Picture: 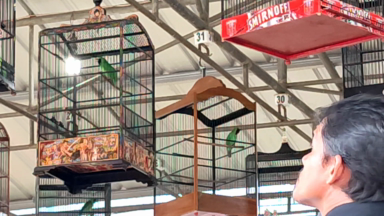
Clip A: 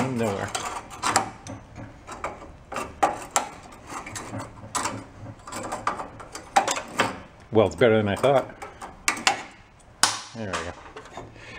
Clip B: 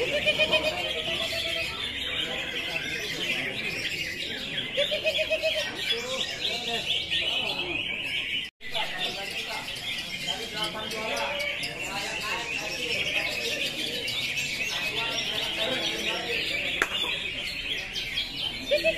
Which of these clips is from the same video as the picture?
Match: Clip B